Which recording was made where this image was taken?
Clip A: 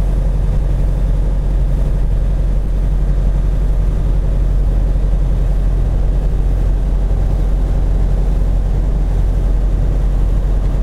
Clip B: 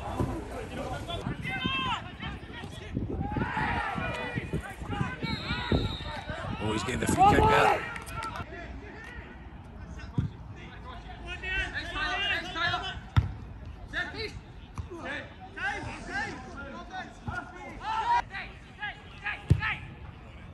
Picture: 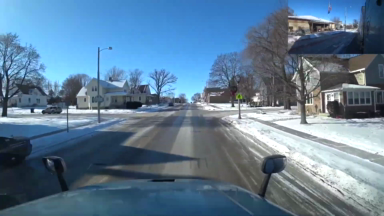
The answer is A